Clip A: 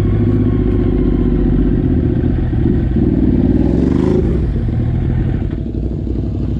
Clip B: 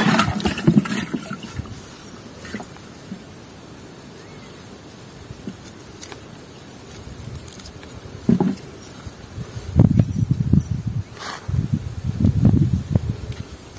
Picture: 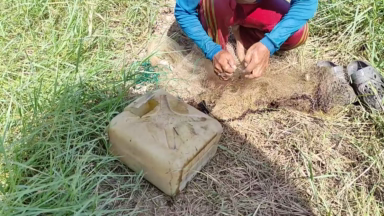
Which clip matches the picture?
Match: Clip B